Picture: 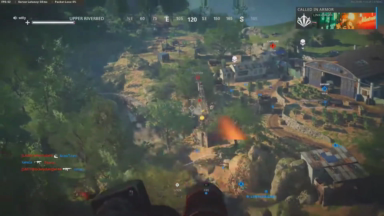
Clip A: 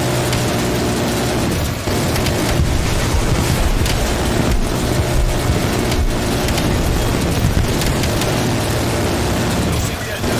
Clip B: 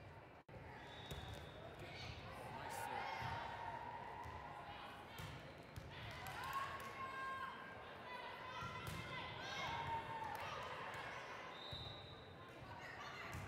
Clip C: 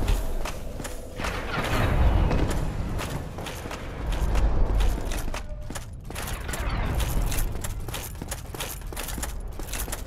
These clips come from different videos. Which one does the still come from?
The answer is A